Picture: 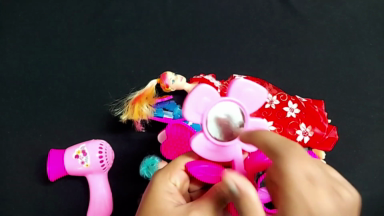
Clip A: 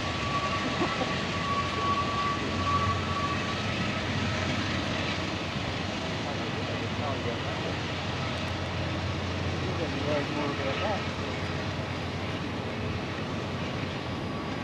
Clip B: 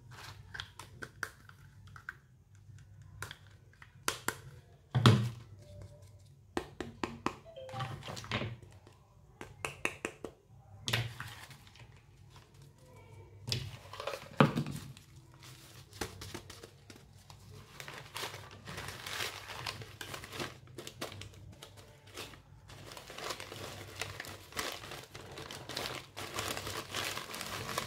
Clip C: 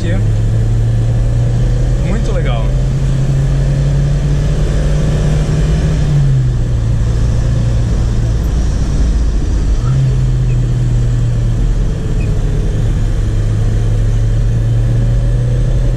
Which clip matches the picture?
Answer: B